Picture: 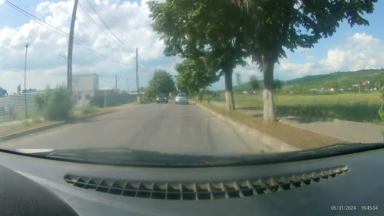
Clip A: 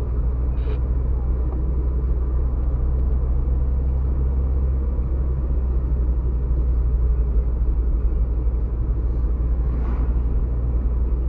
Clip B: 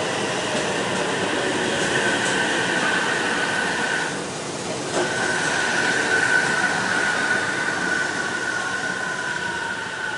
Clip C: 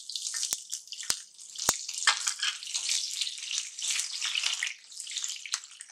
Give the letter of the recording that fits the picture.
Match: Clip A